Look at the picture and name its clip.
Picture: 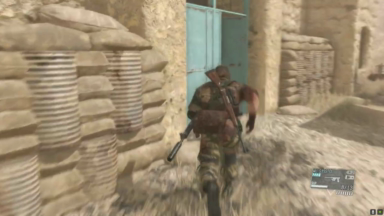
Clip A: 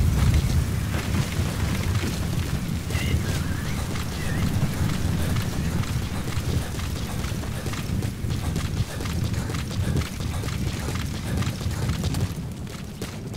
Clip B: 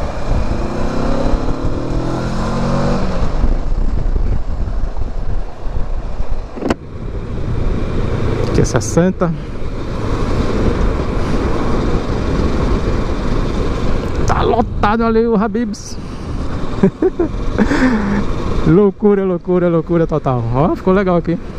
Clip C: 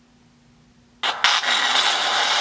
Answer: A